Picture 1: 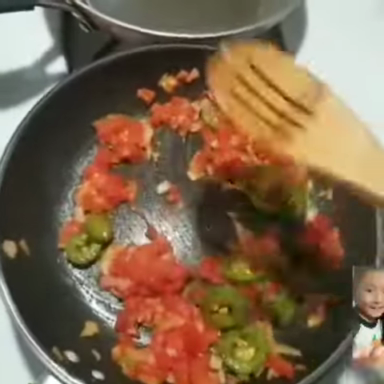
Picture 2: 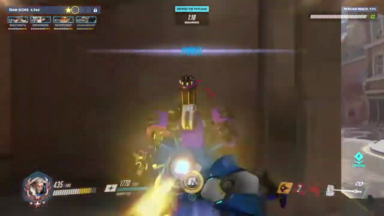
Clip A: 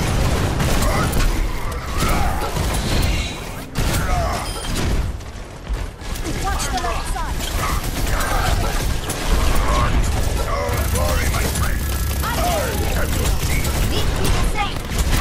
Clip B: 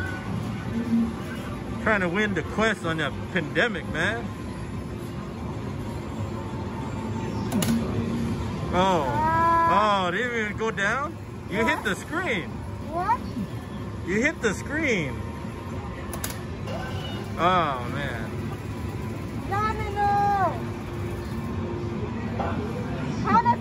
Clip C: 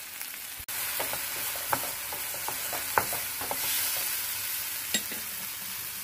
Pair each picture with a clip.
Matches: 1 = C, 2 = A